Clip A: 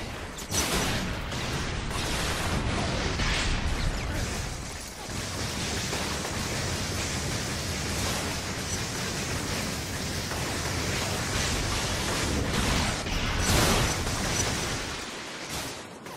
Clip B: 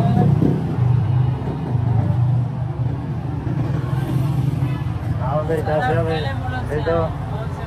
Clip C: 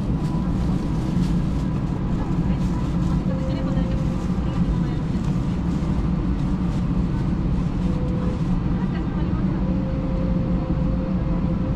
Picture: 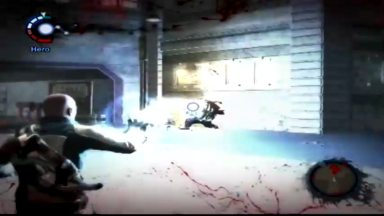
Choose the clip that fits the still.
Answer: A